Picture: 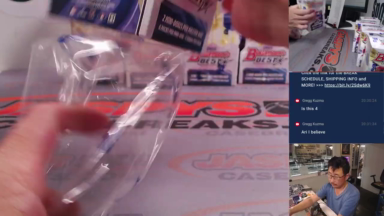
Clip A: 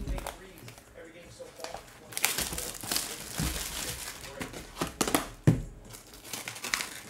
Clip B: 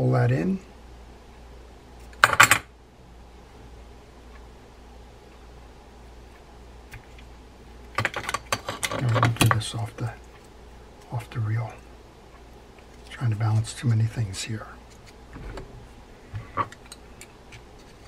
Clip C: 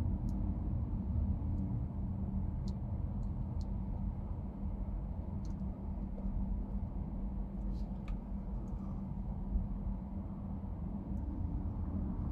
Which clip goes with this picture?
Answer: A